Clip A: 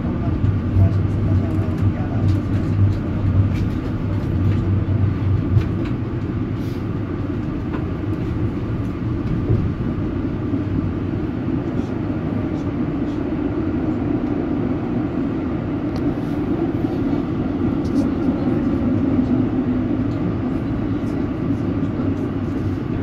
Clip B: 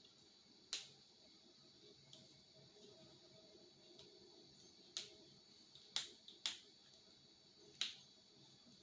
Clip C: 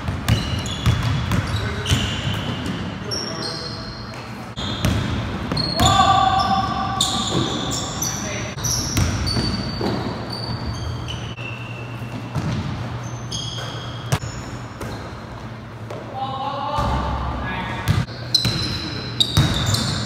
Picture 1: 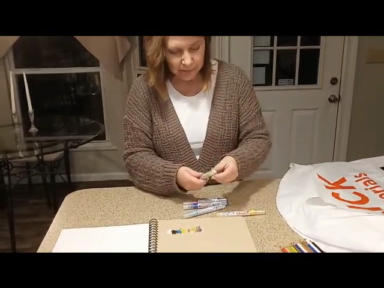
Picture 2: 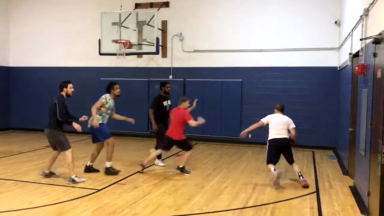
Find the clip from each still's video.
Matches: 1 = B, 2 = C